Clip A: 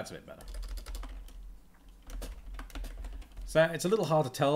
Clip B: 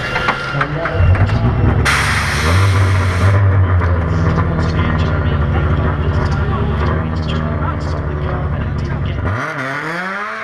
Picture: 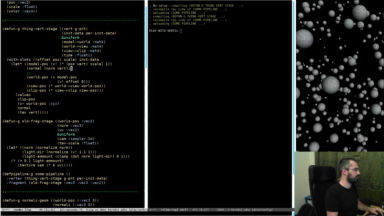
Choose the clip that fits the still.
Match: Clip A